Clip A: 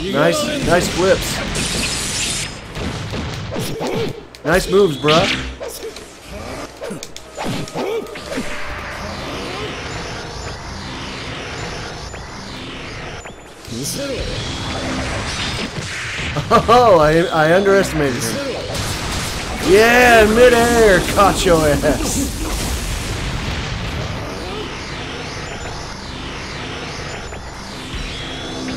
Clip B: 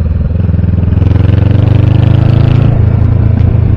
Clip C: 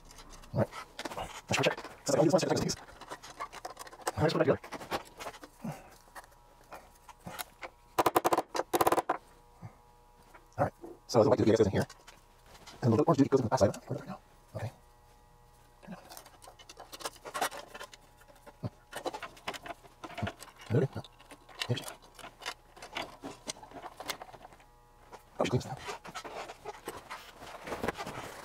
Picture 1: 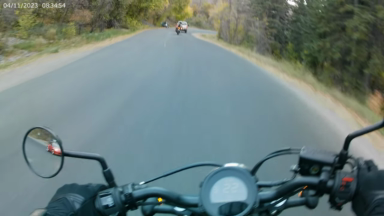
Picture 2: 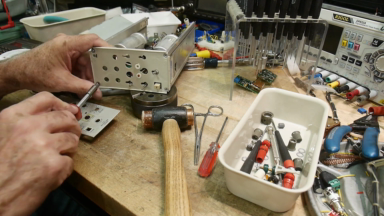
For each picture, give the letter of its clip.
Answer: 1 B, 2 C